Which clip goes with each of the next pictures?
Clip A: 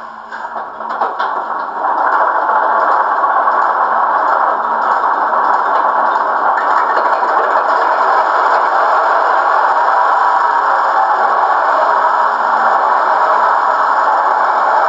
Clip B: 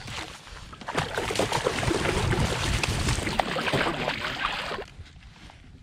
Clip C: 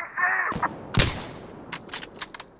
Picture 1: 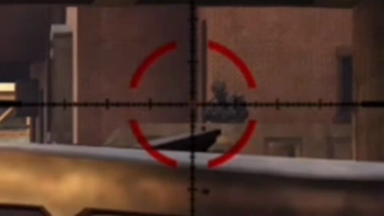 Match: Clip C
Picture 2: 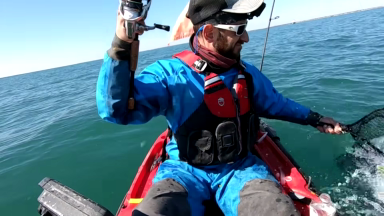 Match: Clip B